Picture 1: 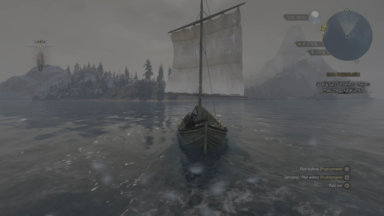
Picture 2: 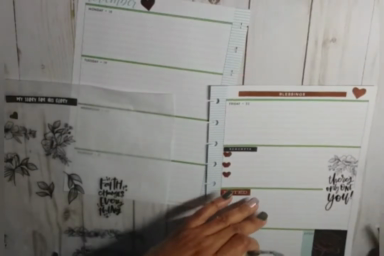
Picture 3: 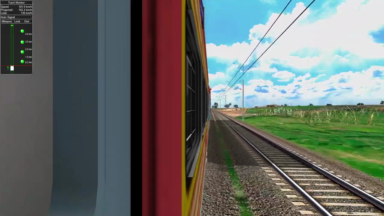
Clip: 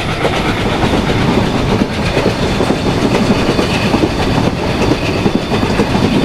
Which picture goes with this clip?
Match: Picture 3